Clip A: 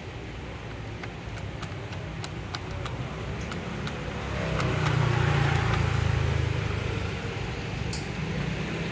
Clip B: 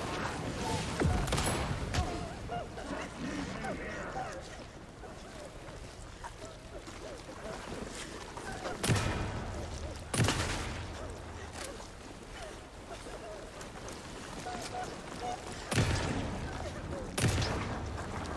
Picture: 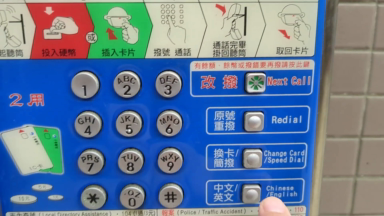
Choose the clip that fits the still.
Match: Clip A